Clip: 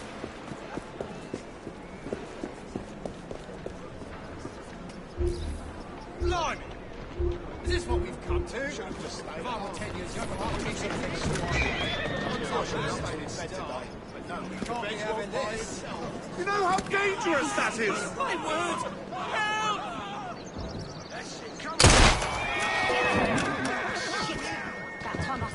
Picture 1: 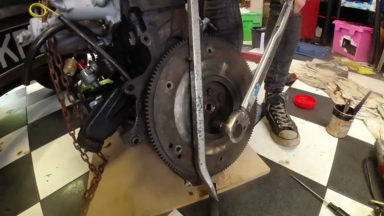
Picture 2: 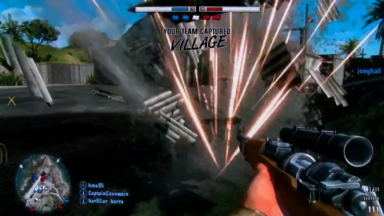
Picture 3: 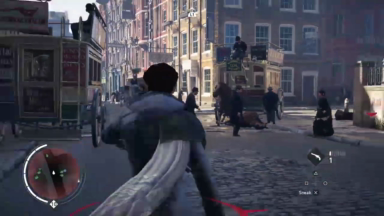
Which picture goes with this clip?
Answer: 3